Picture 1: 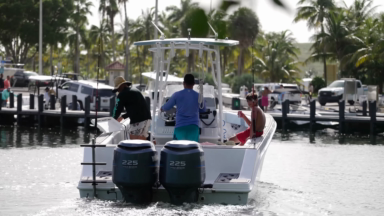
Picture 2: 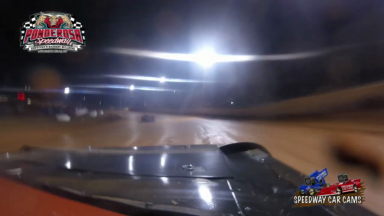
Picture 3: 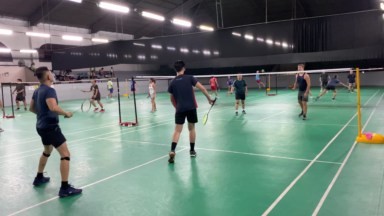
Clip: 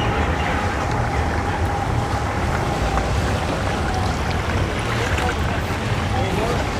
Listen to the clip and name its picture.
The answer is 1